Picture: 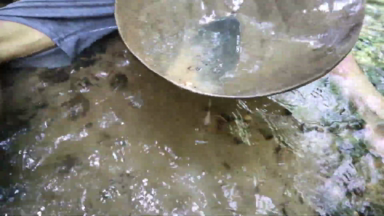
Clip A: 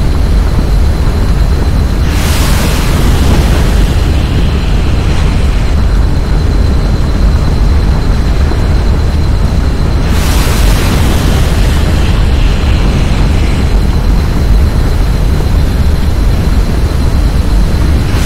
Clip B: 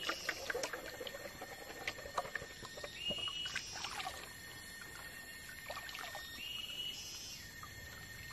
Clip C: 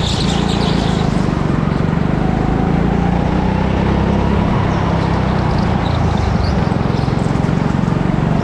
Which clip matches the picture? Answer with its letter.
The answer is B